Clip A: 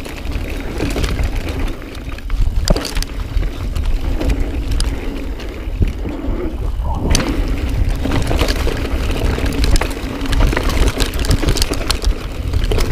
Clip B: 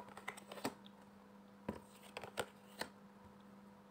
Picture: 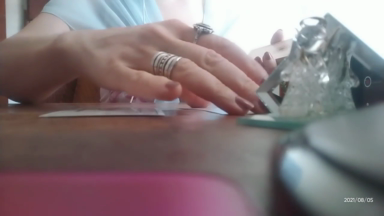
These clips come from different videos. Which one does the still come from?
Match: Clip B